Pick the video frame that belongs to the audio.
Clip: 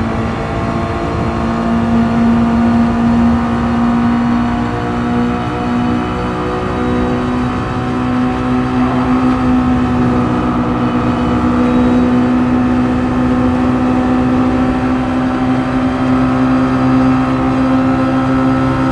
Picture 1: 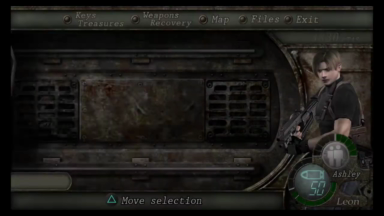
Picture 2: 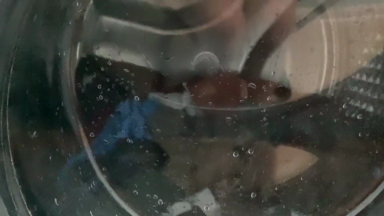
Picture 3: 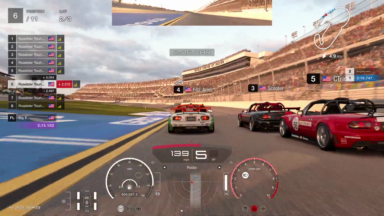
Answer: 3